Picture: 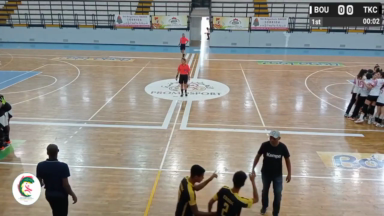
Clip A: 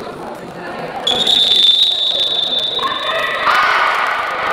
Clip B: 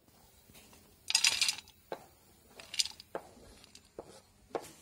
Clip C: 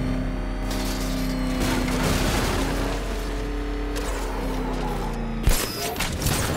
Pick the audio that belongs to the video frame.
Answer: A